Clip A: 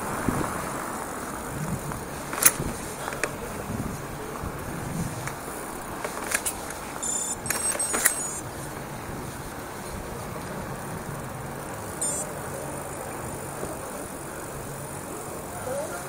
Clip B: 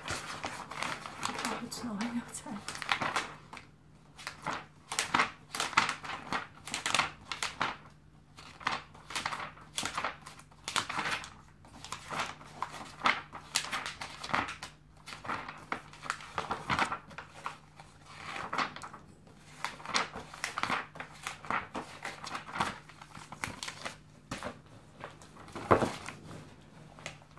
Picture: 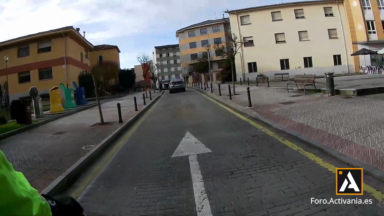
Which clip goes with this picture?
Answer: A